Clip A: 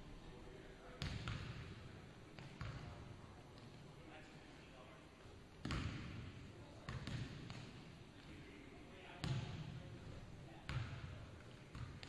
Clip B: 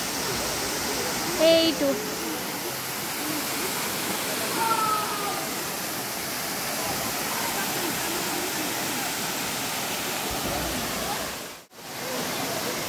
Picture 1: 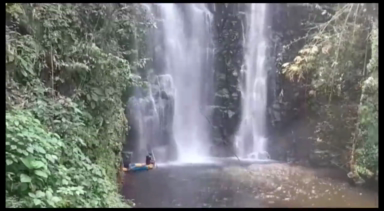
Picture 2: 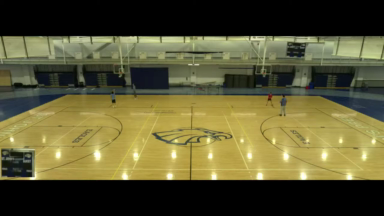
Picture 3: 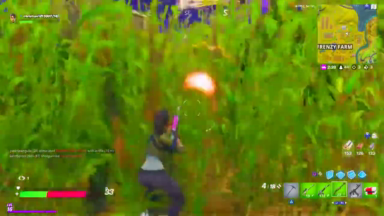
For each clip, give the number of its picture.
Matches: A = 2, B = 1